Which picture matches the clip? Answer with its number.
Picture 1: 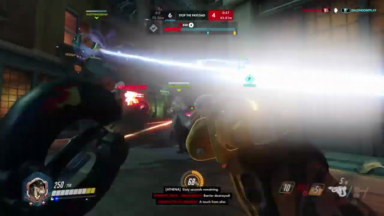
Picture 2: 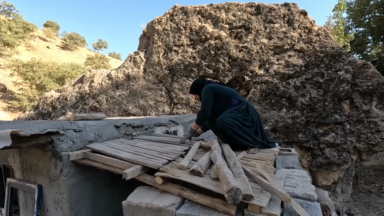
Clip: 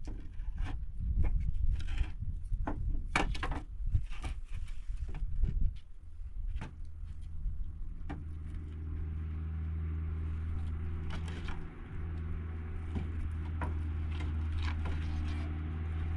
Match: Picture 2